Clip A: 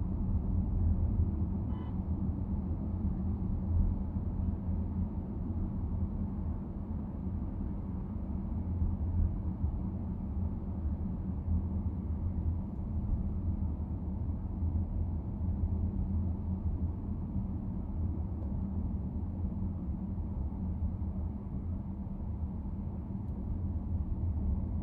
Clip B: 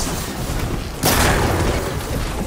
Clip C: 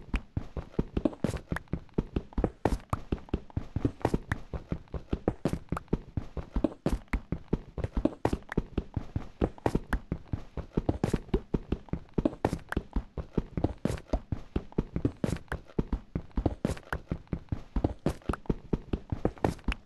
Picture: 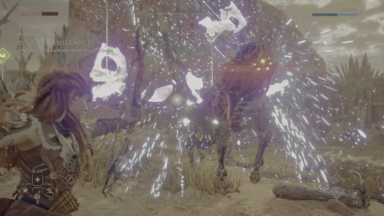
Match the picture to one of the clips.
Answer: B